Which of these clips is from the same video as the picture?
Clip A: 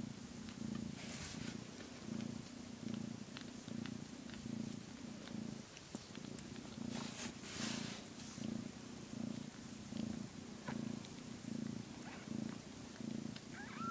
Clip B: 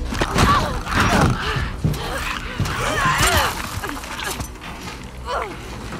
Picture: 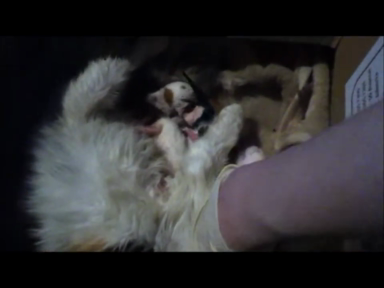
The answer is A